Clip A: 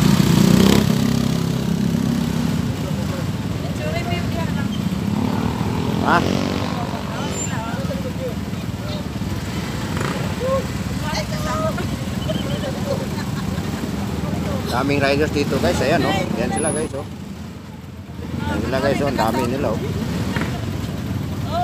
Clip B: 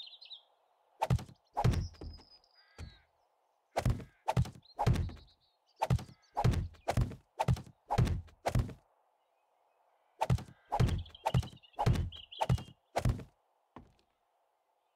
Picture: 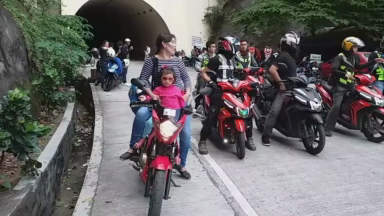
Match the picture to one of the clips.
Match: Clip A